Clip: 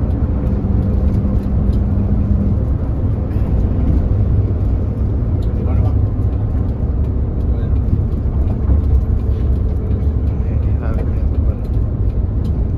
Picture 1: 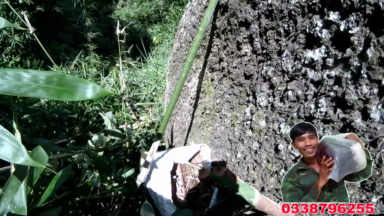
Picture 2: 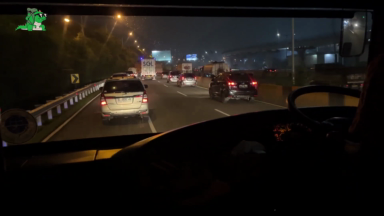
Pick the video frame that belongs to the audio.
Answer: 2